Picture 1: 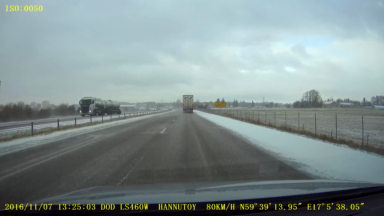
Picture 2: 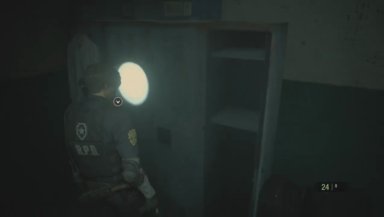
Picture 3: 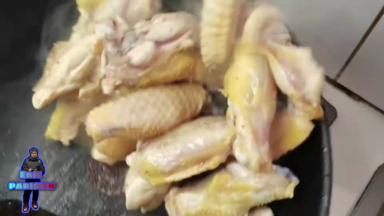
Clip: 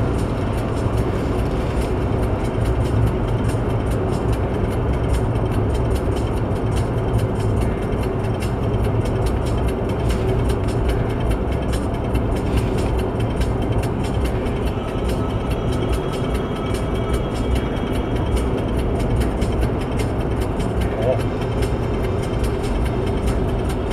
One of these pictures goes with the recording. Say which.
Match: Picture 1